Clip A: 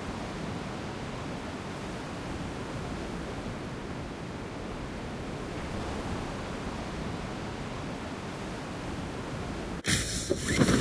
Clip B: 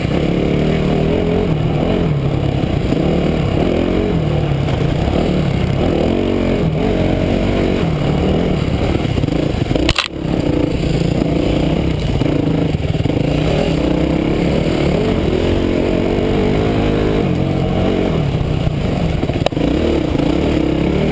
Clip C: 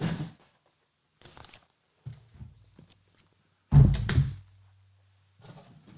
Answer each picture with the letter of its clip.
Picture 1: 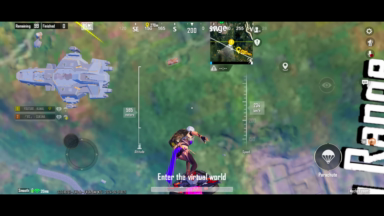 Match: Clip A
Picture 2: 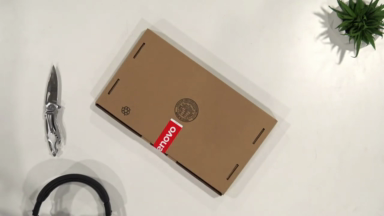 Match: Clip C